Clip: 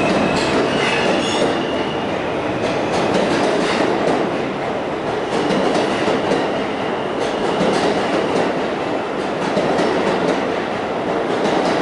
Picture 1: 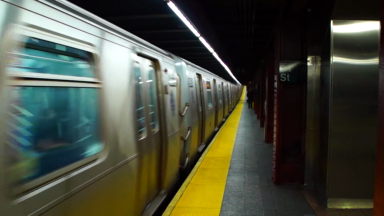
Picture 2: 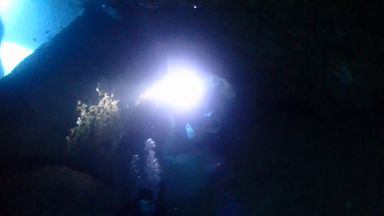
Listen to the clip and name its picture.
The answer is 1